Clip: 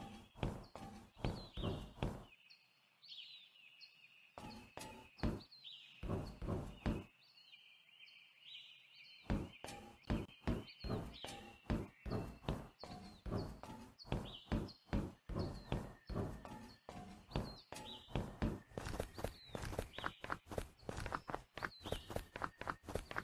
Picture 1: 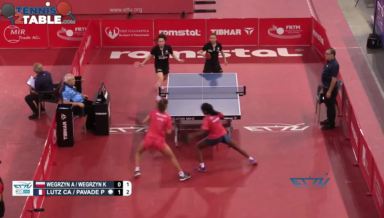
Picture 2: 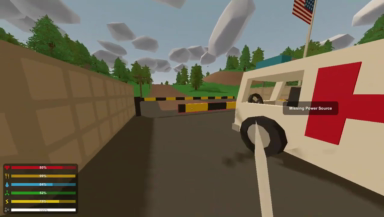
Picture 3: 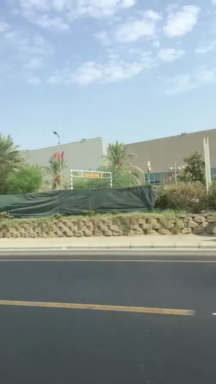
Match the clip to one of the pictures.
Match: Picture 2